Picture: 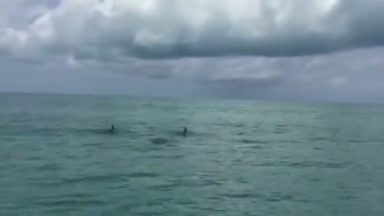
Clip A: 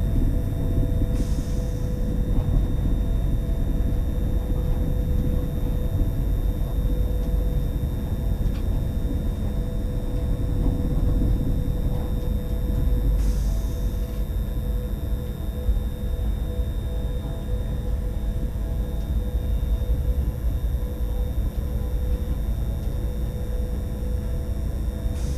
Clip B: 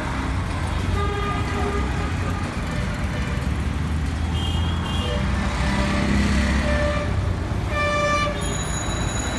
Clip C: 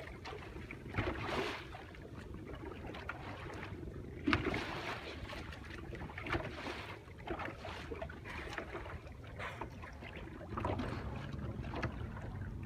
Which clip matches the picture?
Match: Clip C